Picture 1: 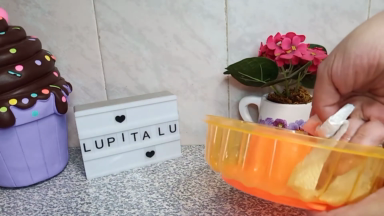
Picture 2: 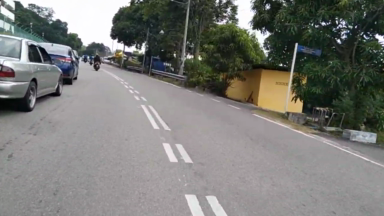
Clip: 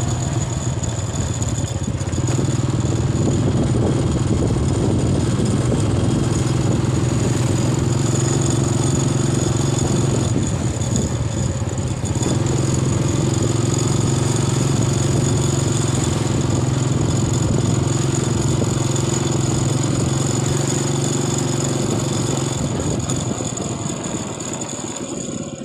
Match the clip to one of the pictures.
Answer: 2